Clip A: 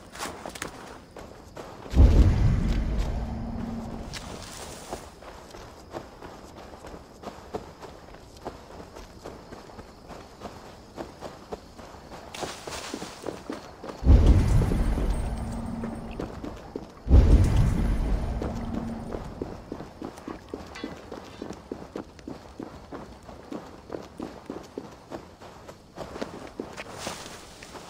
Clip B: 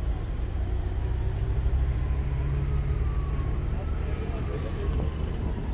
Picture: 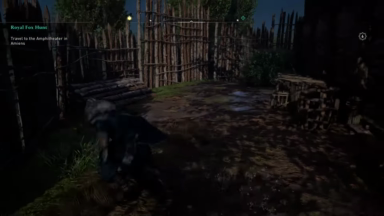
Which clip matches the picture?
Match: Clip A